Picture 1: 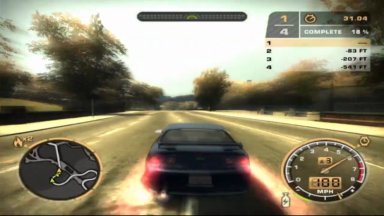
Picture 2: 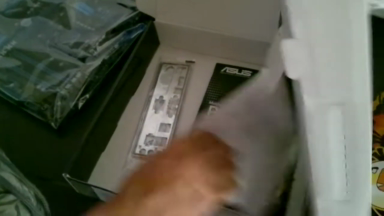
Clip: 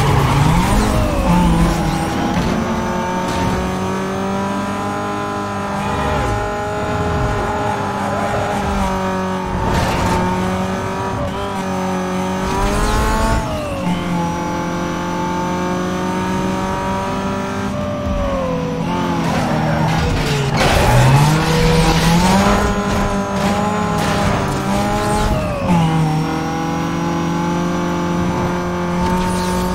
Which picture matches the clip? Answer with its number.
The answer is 1